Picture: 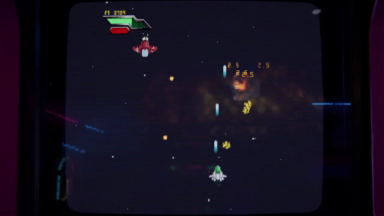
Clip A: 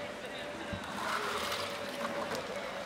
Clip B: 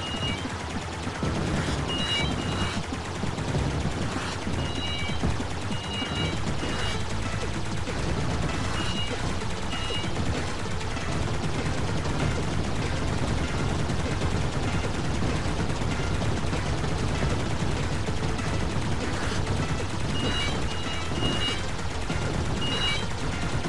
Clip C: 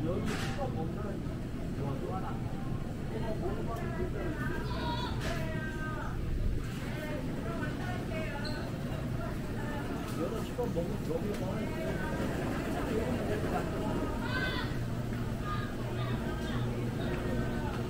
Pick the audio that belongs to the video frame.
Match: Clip B